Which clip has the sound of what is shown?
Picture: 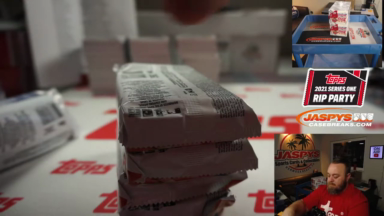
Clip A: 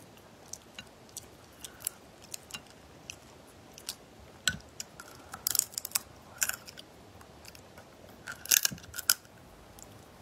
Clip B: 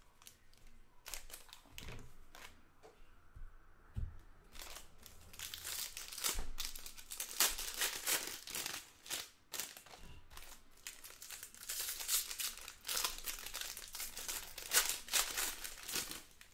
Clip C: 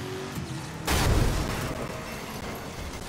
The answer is B